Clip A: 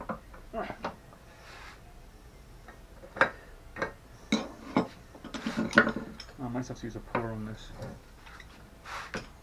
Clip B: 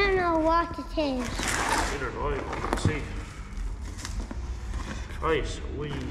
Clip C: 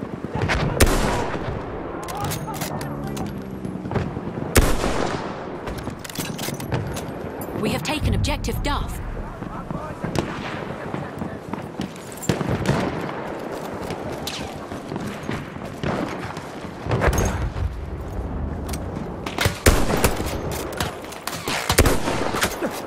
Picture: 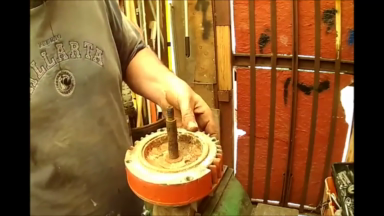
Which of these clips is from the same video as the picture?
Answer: A